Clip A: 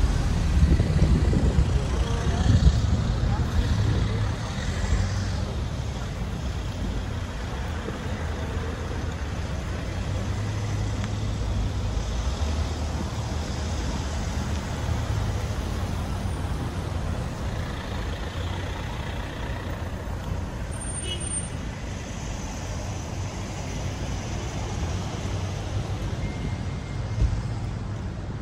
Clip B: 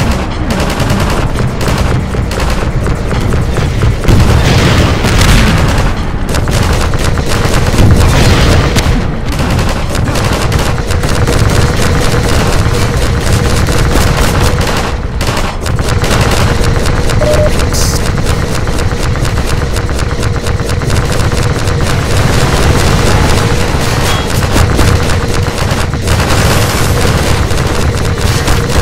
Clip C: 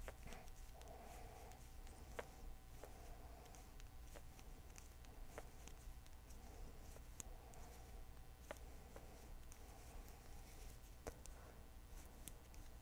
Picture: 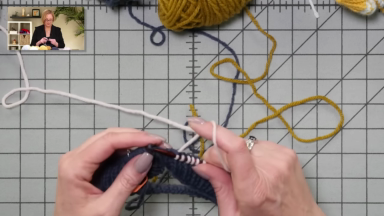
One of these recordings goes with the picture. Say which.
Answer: C